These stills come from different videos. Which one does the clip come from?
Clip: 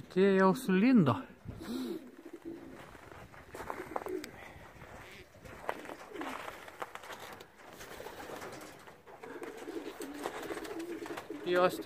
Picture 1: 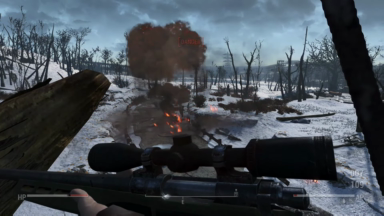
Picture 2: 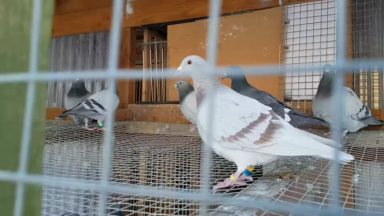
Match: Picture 2